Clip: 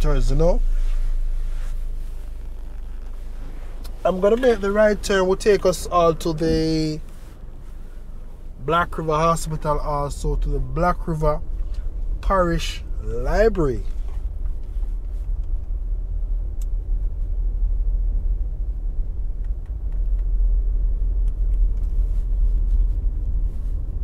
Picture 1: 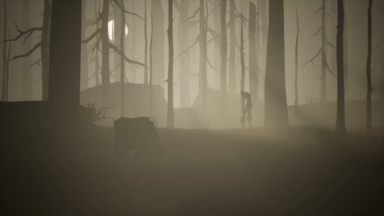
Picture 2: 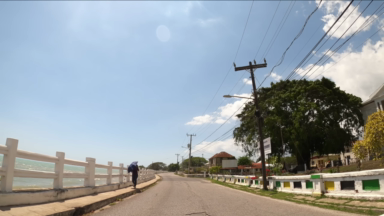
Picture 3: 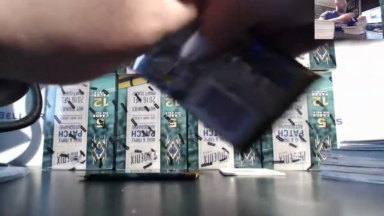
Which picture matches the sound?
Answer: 2